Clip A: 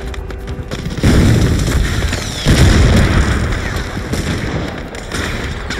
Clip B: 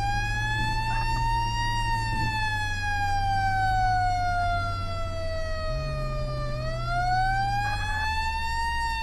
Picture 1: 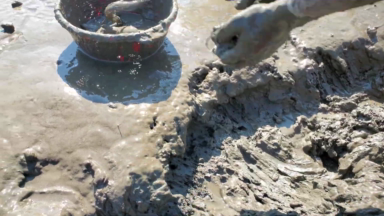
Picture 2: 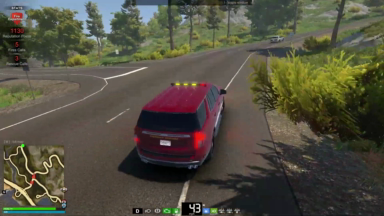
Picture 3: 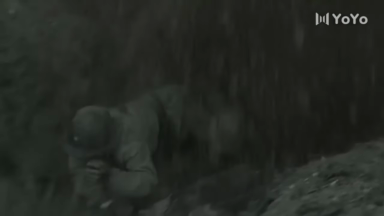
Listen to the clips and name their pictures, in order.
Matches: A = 3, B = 2